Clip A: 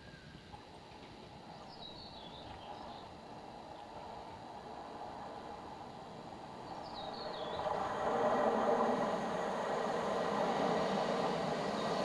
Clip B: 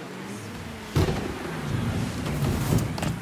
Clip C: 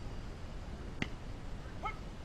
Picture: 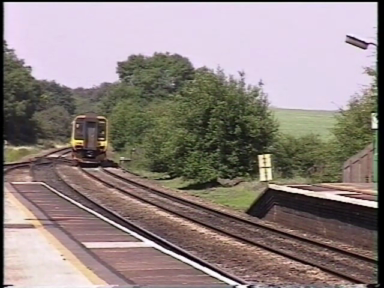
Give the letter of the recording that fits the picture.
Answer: A